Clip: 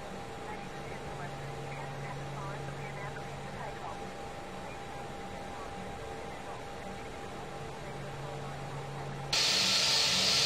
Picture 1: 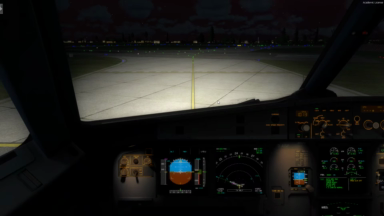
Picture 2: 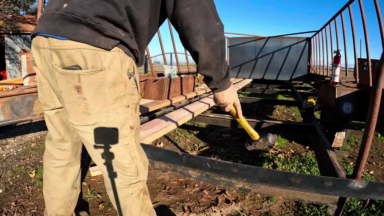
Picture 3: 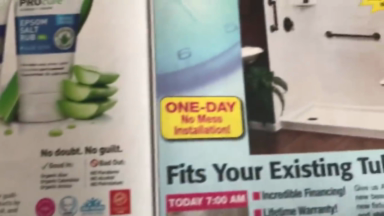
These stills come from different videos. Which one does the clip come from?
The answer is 1